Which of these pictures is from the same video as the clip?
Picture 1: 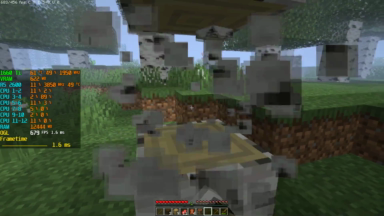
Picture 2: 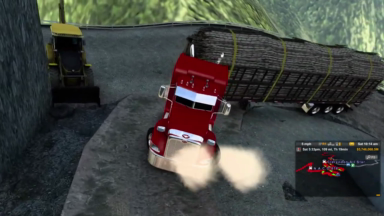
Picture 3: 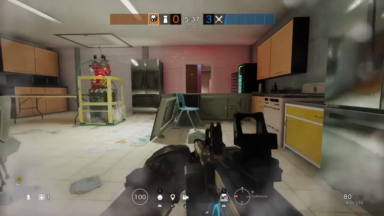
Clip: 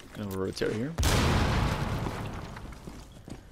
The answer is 3